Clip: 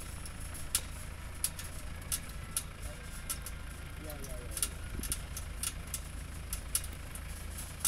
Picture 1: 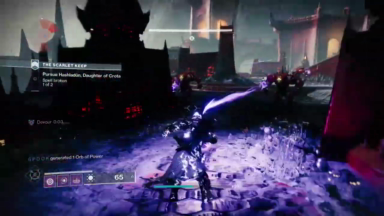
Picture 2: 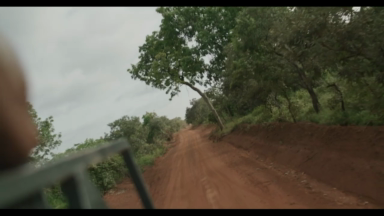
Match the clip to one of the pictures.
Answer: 2